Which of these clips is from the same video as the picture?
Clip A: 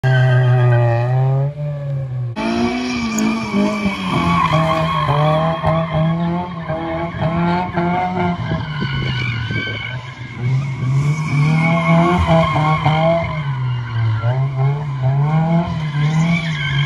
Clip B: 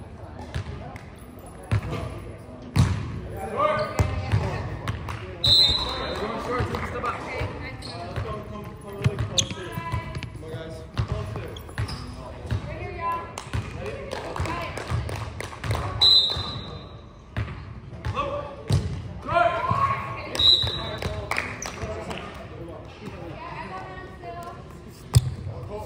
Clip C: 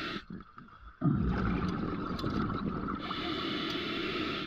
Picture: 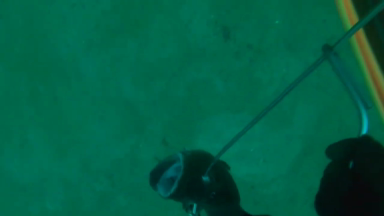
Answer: C